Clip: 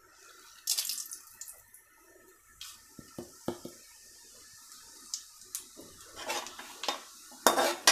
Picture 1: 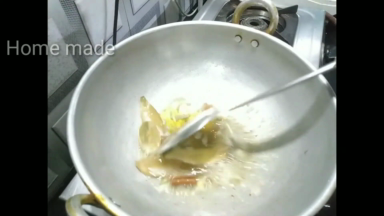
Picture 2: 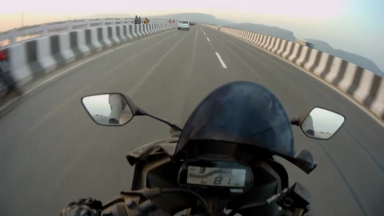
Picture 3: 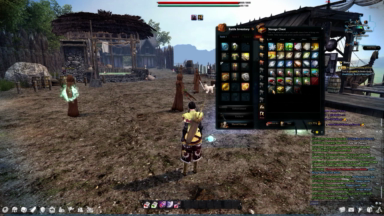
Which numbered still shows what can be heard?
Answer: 1